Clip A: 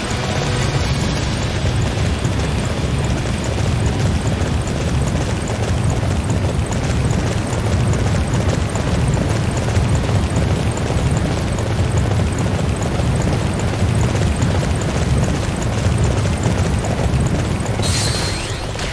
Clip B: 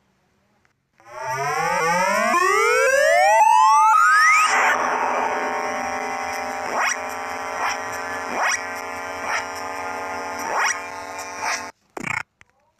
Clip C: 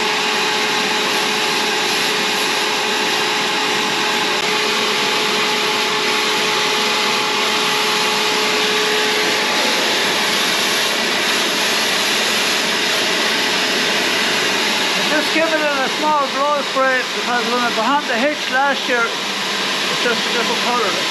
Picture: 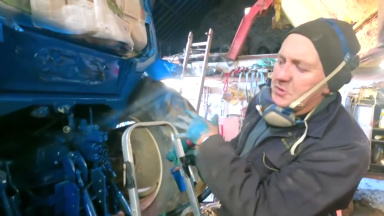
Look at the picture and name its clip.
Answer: C